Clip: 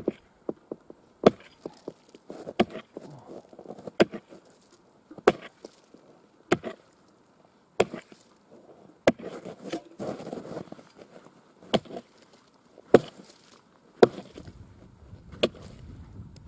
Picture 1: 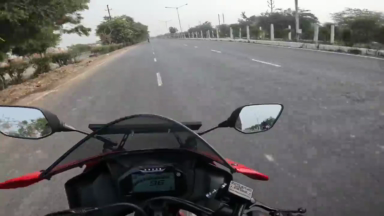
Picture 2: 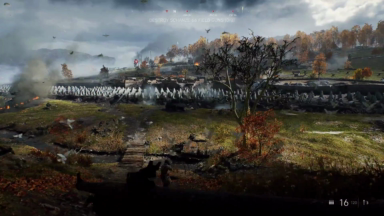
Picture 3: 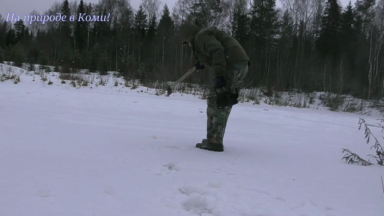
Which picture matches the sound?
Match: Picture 3